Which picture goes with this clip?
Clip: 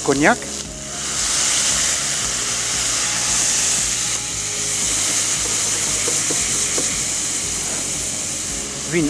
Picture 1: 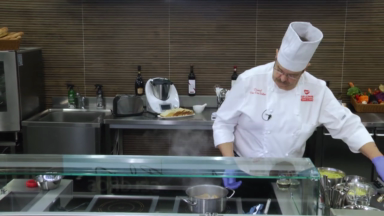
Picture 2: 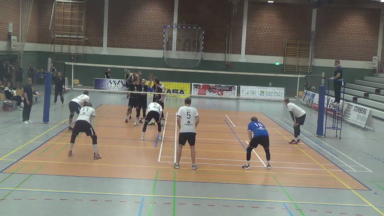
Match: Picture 1